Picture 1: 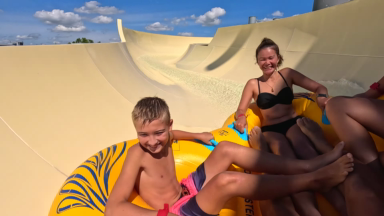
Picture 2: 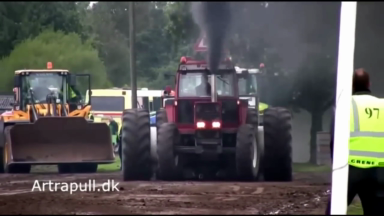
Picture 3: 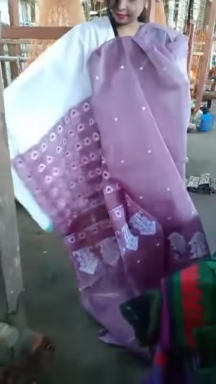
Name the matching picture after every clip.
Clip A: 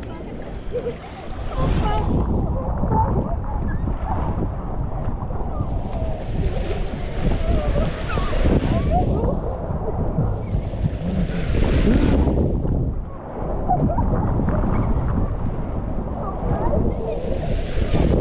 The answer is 1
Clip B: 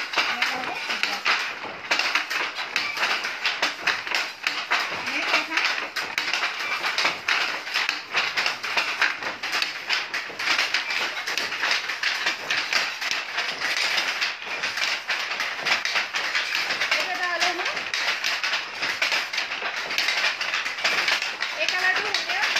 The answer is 3